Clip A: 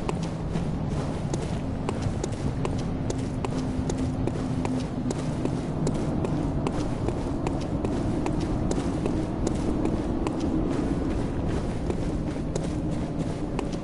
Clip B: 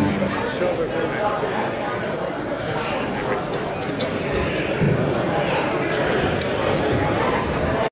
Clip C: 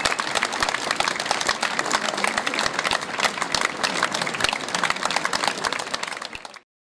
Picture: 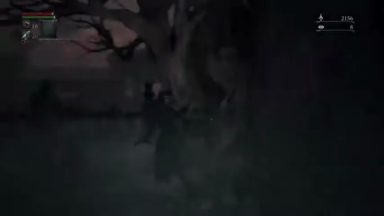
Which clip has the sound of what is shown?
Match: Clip A